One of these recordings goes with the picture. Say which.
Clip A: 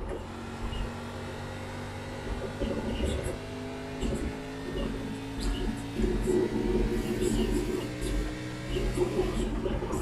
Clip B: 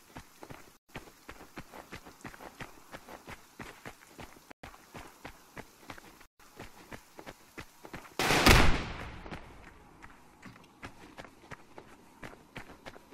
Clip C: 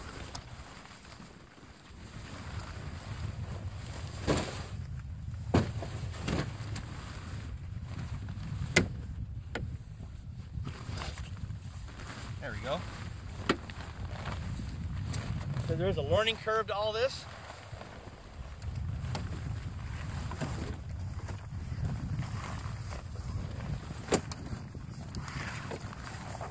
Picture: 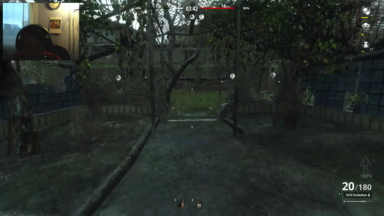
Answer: B